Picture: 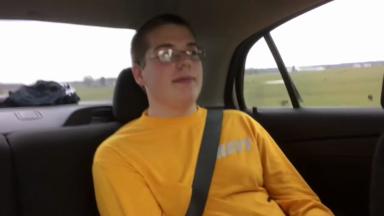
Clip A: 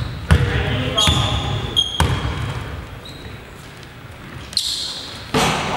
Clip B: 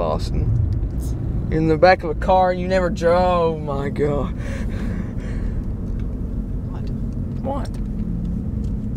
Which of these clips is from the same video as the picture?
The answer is B